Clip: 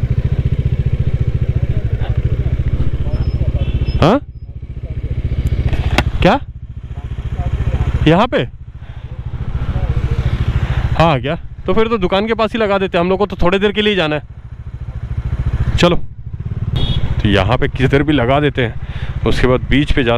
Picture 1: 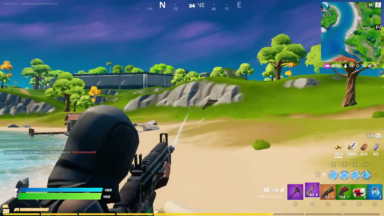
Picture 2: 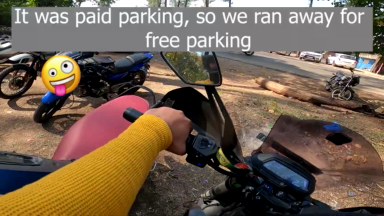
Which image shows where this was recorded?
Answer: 2